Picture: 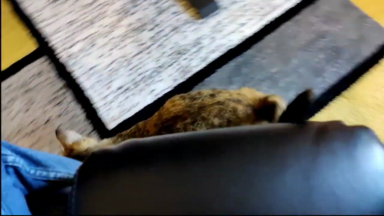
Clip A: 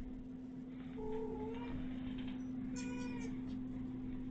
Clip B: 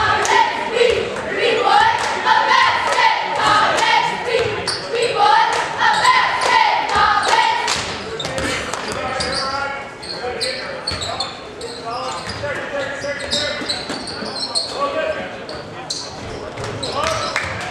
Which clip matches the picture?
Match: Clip A